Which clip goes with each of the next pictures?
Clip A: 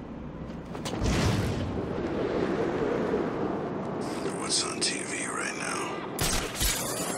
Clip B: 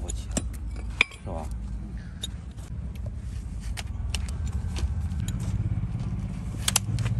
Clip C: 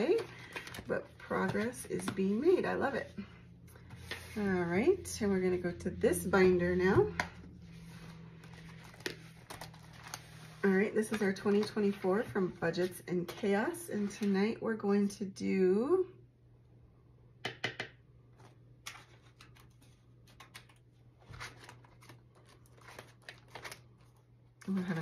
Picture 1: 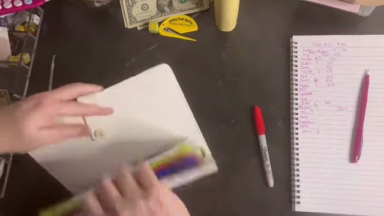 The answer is C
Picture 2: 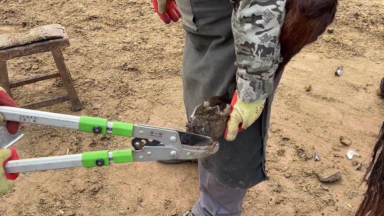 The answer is B